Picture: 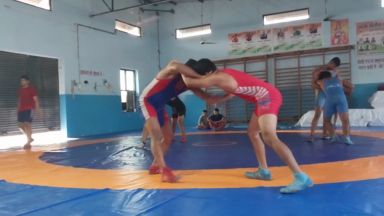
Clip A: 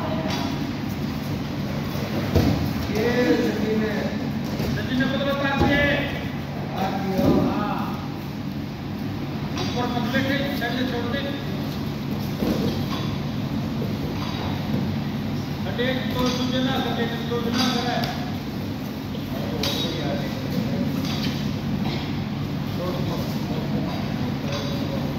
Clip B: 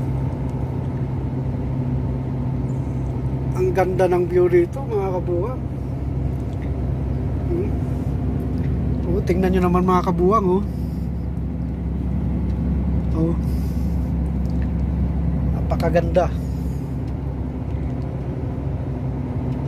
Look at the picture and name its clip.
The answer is A